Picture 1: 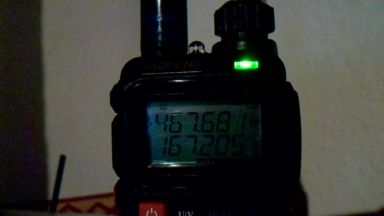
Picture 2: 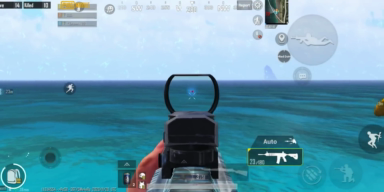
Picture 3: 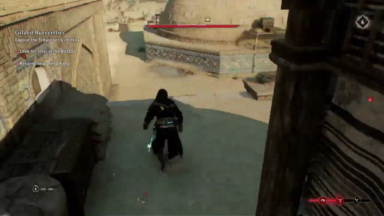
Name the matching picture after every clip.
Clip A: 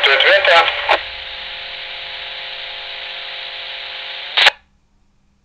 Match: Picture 1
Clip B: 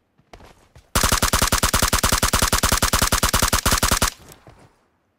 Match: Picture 2